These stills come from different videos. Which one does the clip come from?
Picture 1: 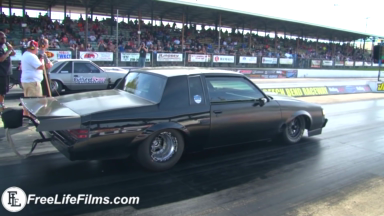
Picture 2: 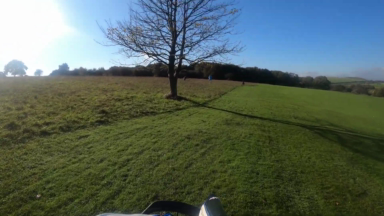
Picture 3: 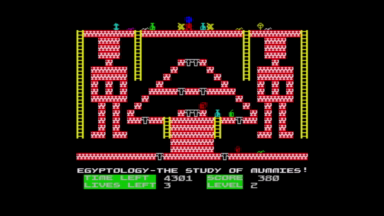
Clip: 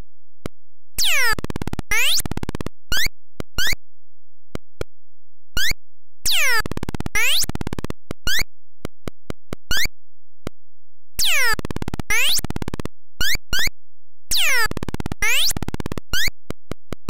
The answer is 3